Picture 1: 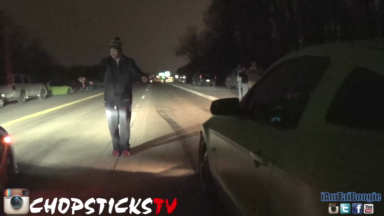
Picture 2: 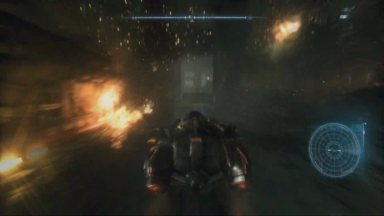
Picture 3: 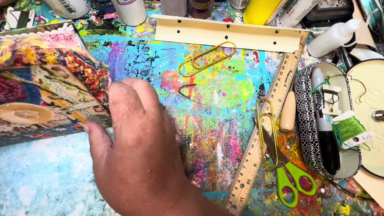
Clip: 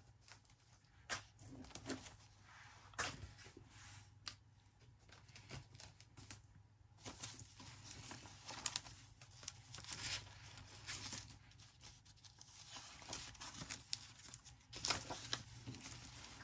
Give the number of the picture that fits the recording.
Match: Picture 3